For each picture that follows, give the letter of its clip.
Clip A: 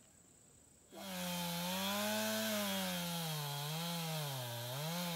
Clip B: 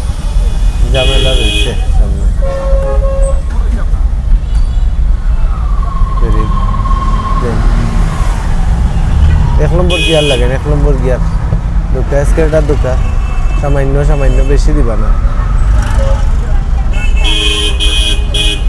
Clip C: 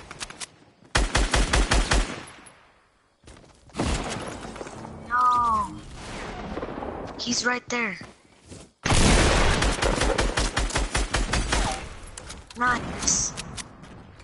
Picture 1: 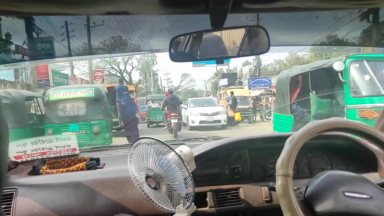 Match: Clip B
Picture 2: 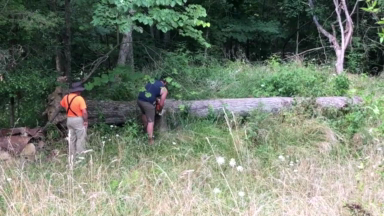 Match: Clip A